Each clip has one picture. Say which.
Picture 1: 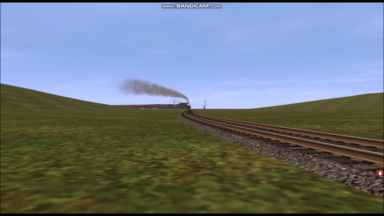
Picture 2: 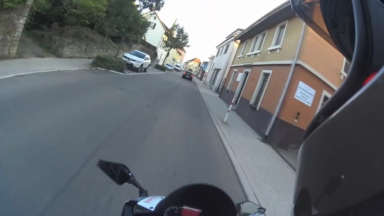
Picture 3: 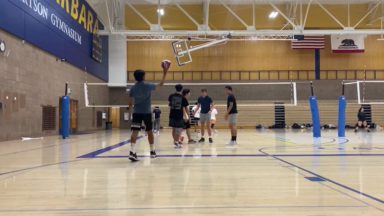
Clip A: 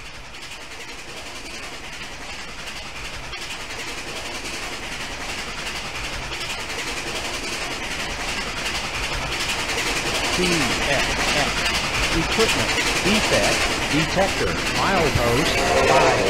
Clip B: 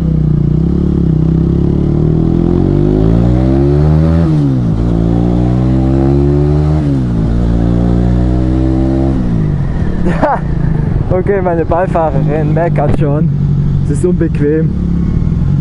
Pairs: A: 1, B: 2